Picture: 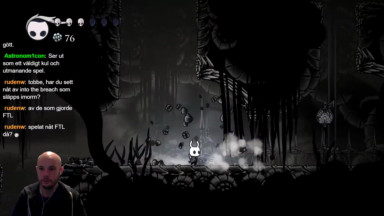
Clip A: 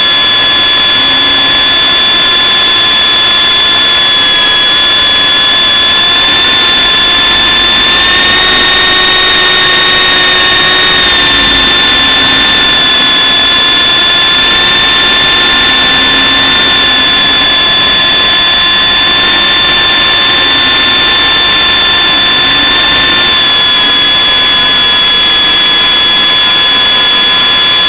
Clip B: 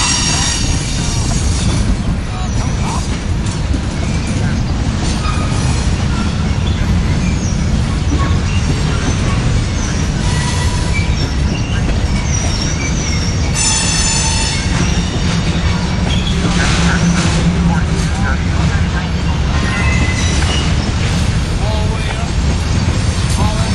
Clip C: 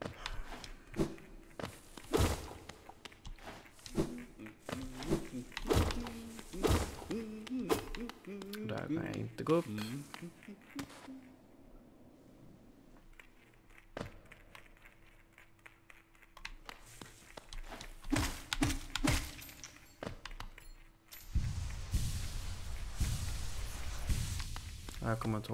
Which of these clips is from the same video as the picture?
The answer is C